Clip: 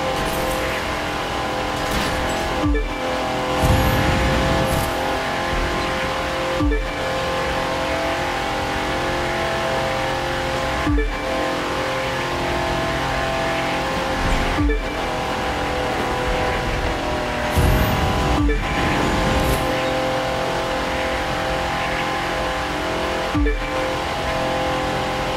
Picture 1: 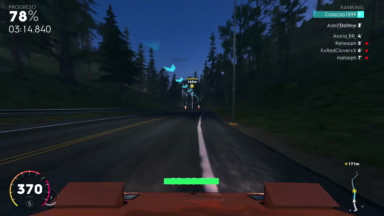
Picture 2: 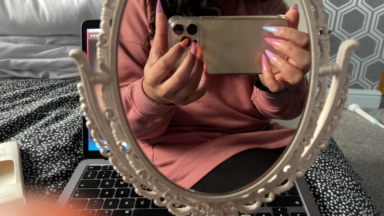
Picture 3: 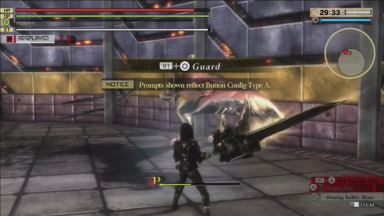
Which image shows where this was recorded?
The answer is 1